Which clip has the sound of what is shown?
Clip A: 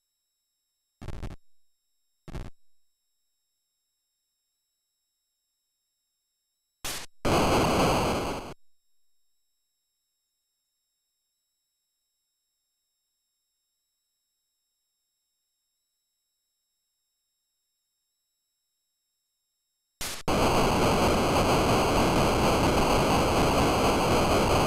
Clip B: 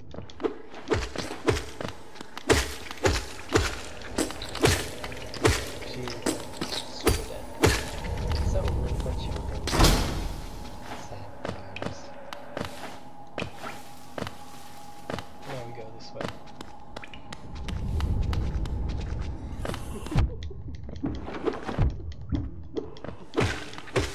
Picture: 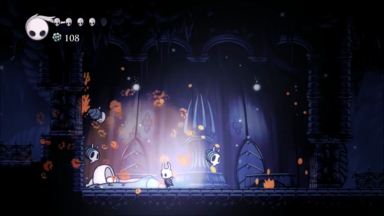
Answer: B